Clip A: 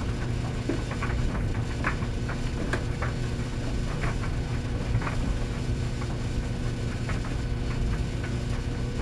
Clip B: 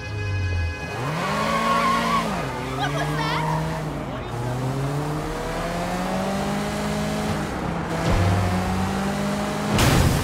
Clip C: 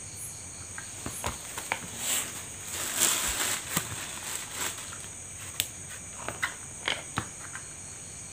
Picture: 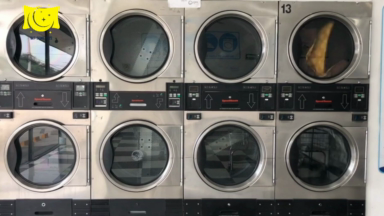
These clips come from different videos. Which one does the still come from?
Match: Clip A